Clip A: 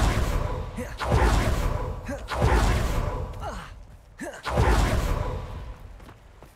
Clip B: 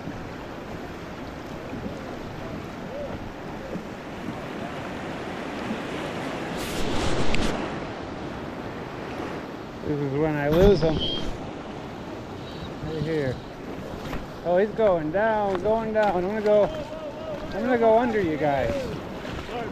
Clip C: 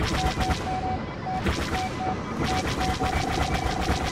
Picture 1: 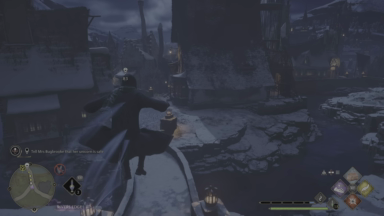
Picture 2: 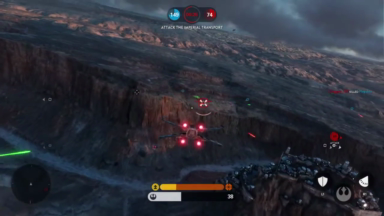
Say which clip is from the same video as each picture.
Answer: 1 A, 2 C